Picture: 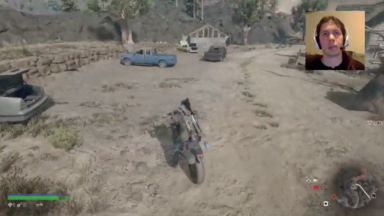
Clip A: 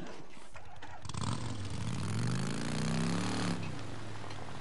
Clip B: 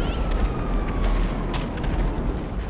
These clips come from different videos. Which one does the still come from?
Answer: A